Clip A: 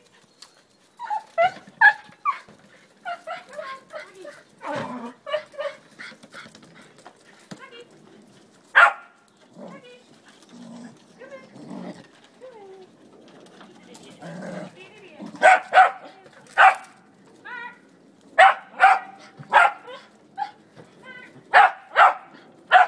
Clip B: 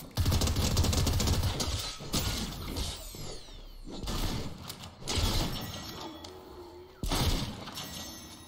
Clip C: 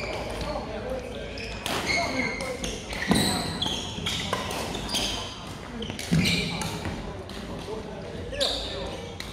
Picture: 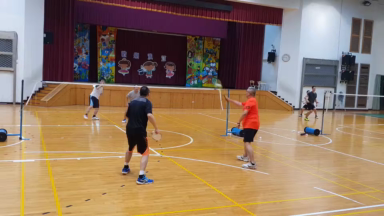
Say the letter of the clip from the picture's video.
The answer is C